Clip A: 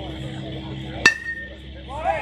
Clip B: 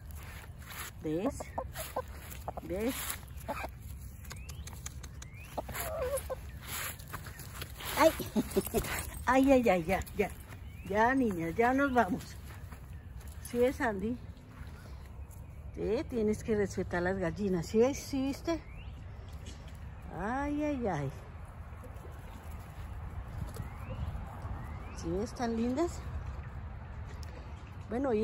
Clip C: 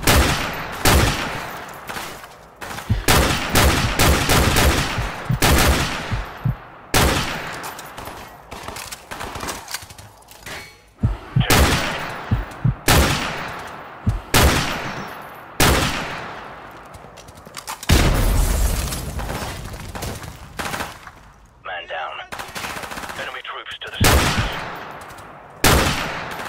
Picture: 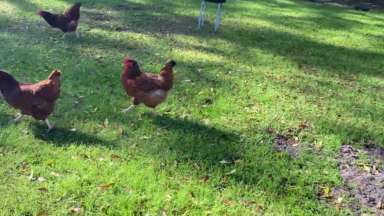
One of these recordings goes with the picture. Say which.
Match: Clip B